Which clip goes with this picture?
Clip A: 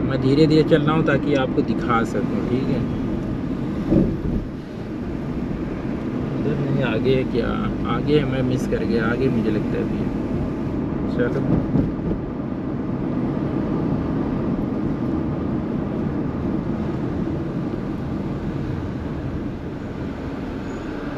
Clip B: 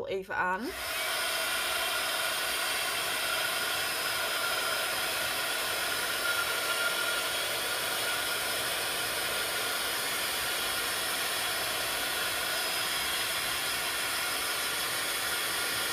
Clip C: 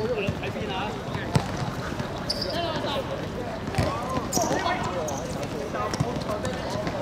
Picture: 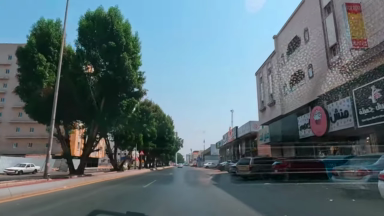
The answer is A